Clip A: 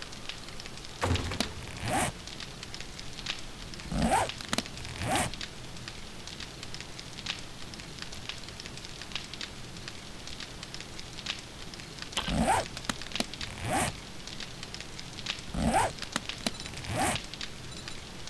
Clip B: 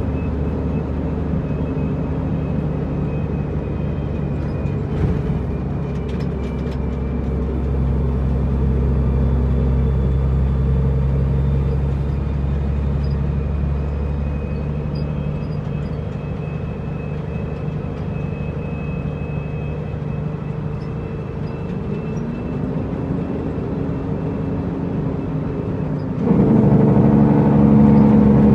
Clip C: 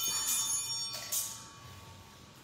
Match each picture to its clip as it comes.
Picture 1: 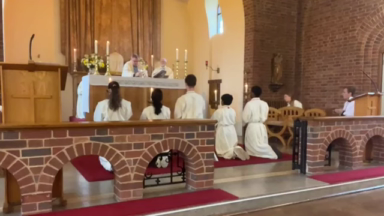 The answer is C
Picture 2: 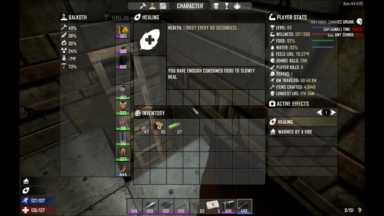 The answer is A